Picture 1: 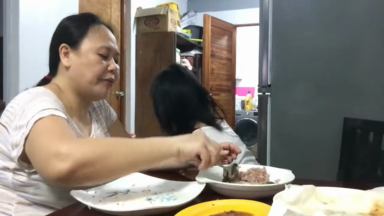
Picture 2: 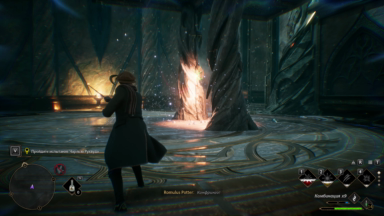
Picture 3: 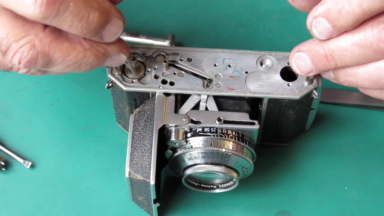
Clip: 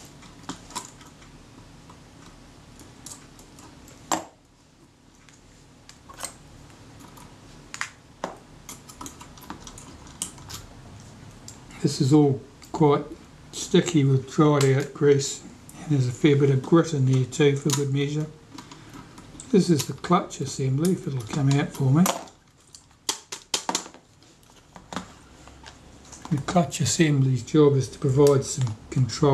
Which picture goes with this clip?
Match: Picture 3